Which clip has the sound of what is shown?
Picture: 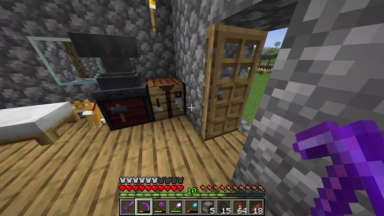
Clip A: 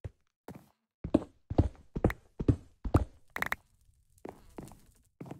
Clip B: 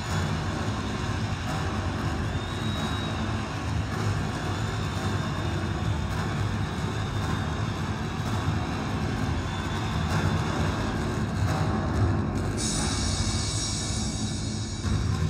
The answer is A